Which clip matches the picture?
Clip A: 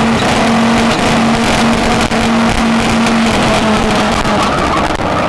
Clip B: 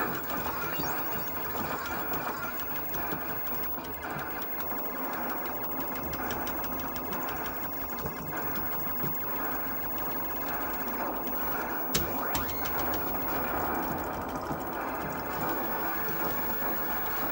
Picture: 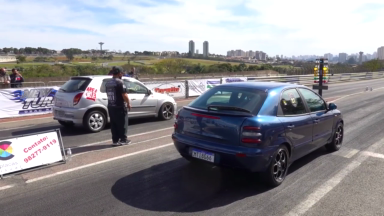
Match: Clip A